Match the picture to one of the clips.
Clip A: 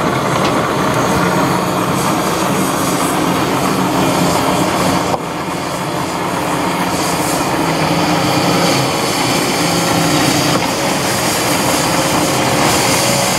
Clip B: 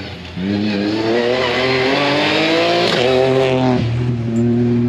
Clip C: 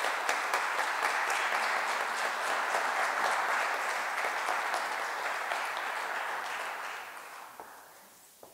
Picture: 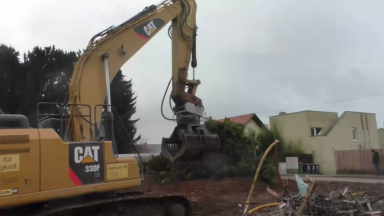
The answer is A